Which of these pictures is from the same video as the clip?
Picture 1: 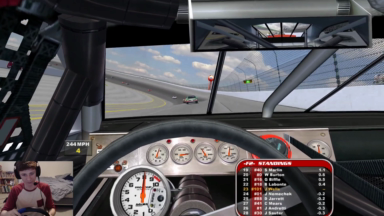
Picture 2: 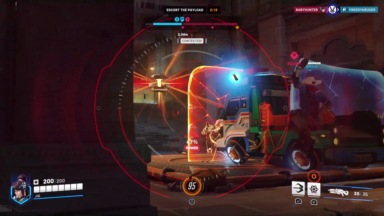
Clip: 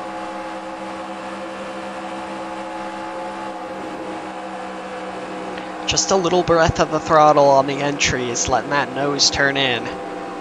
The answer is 1